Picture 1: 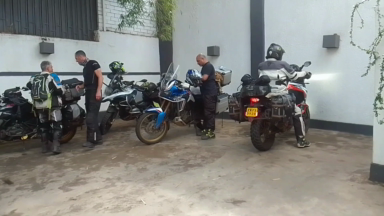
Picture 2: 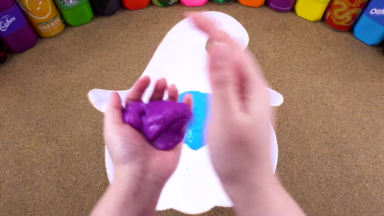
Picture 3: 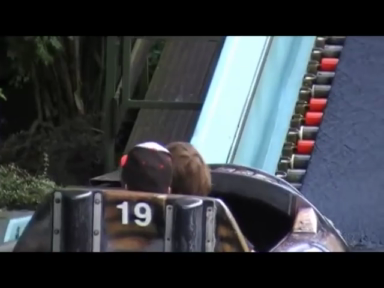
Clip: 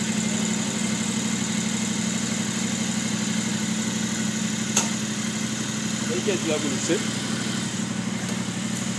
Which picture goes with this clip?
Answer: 1